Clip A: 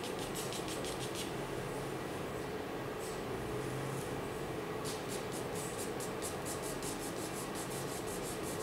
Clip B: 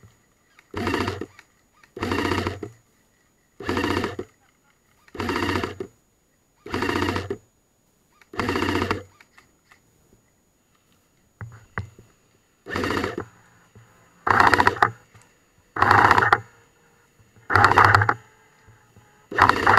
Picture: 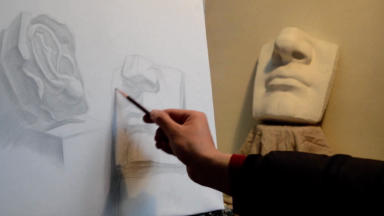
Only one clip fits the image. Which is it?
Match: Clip A